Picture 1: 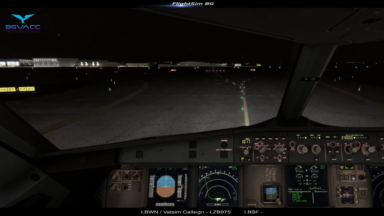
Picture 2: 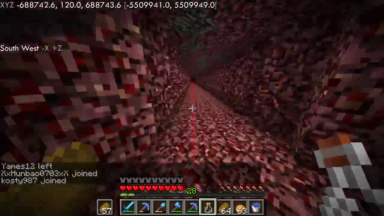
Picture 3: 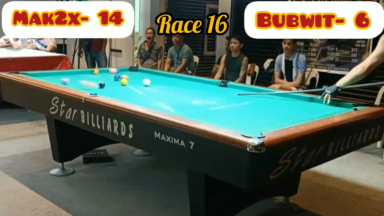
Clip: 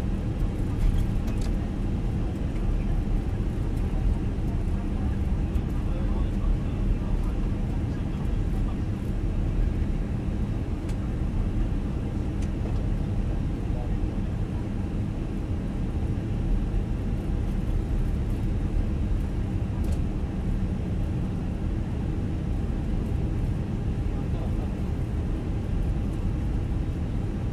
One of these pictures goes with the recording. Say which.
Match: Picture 1